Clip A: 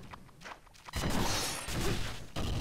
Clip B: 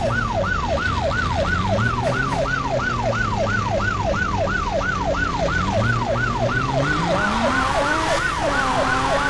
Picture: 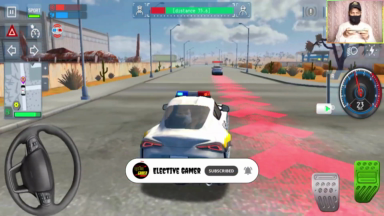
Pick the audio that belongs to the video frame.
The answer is B